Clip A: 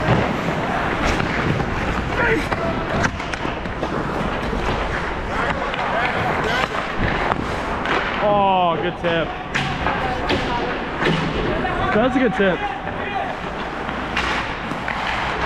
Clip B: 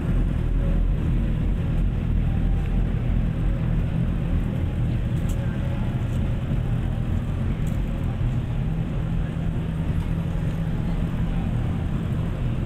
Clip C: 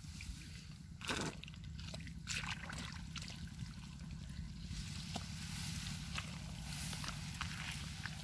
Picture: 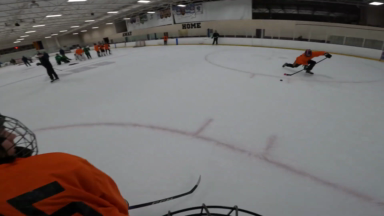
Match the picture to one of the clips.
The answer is A